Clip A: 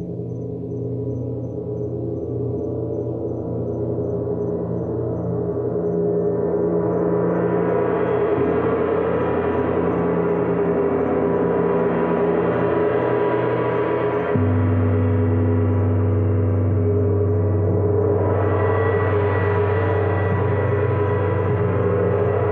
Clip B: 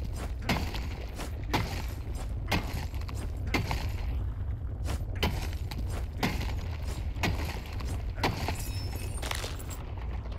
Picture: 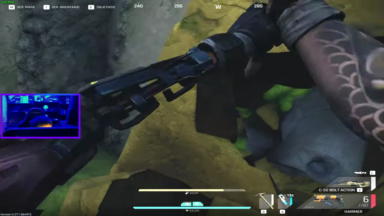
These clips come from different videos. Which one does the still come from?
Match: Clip B